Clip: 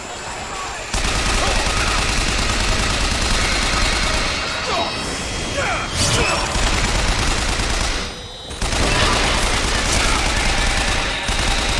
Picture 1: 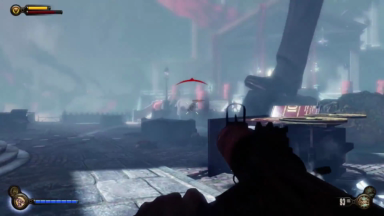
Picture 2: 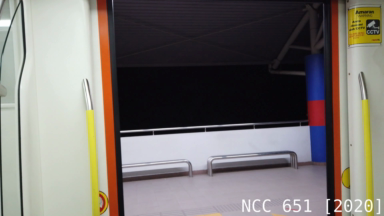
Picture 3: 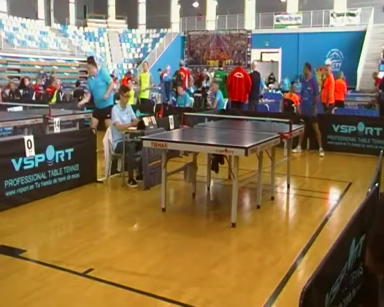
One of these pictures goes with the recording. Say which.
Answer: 1